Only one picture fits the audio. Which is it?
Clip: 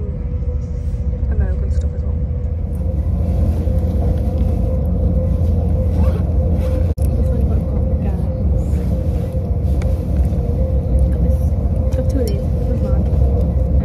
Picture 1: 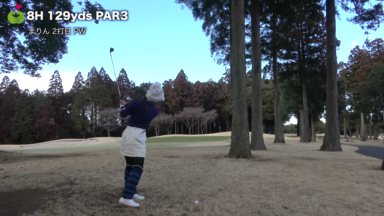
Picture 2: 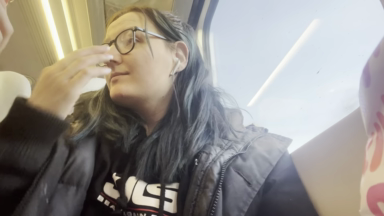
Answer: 2